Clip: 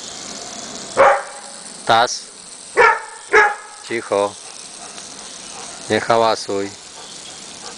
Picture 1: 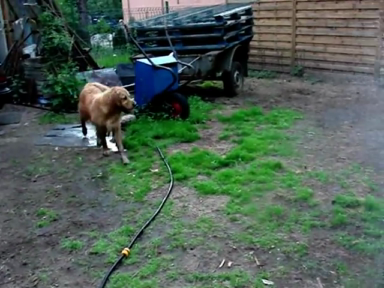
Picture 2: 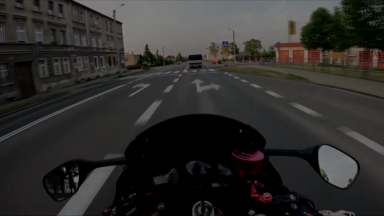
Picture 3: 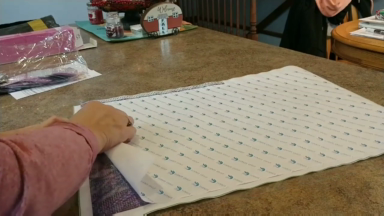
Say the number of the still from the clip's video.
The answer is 1